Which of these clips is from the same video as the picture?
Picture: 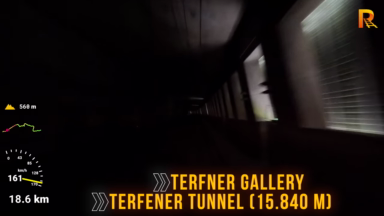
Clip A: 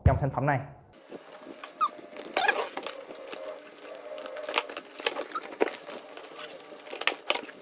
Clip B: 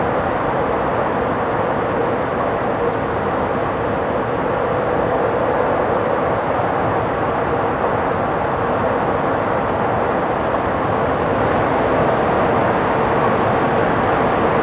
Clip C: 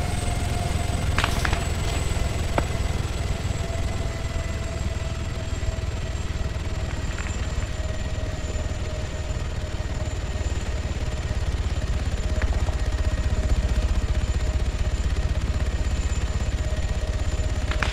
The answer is B